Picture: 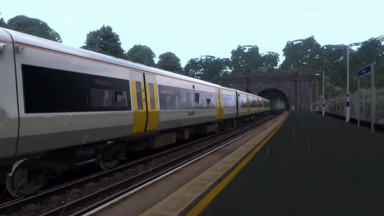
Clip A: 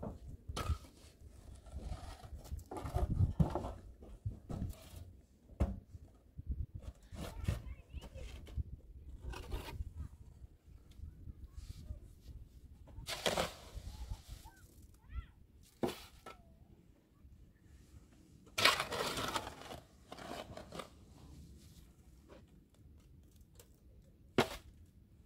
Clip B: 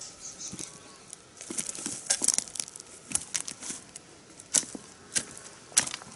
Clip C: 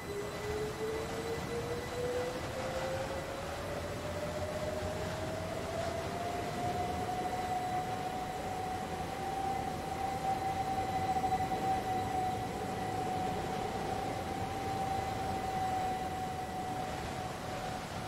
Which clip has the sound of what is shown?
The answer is C